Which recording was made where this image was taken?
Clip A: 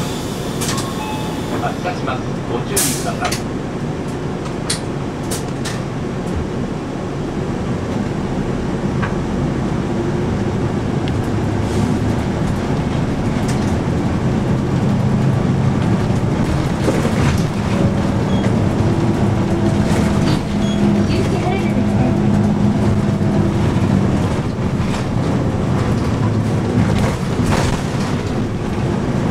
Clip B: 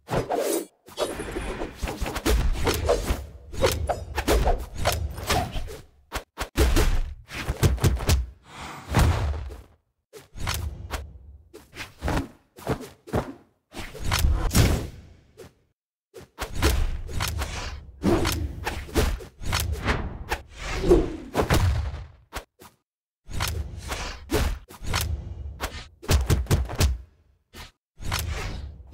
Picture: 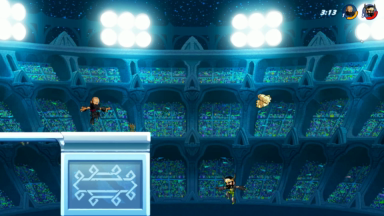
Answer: B